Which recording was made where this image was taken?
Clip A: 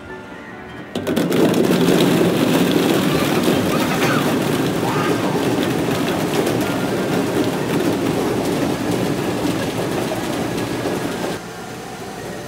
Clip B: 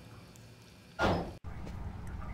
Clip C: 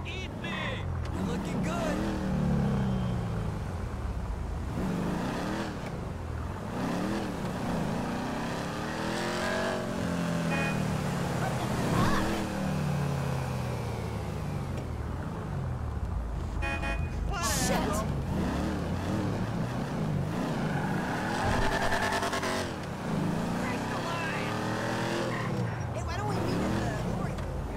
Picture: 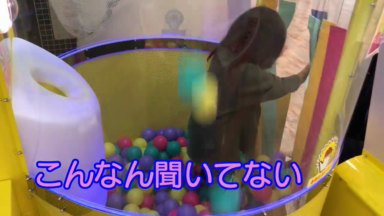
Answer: A